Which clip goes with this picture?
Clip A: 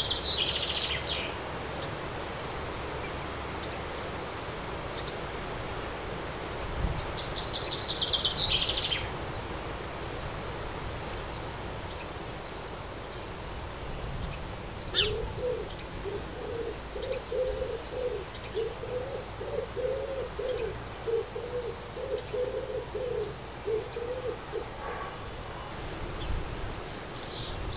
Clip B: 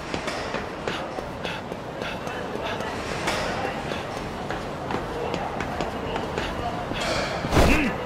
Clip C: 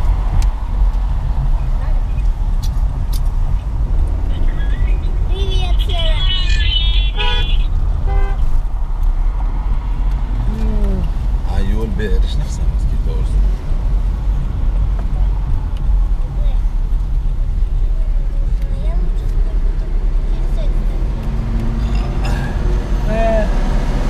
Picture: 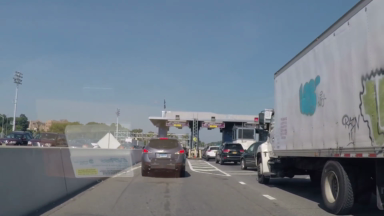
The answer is C